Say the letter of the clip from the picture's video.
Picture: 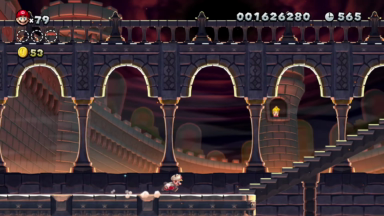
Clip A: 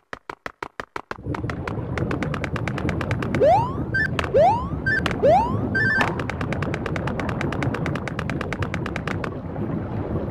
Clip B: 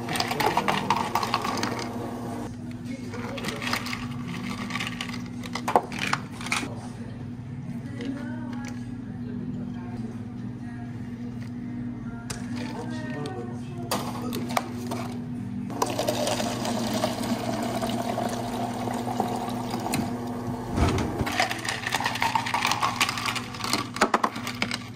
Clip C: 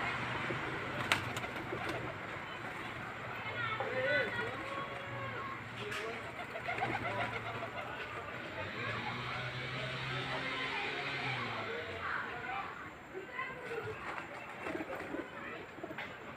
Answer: A